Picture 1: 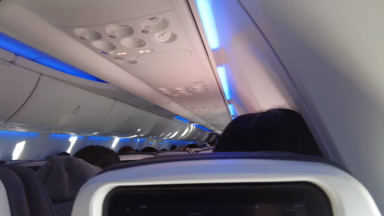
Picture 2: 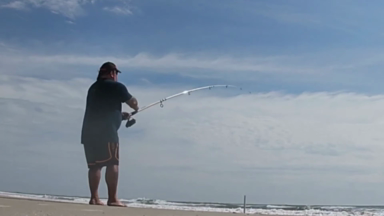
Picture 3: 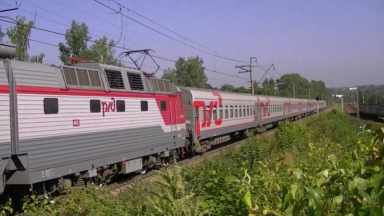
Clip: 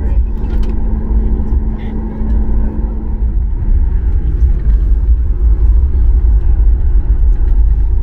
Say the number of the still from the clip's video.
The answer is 1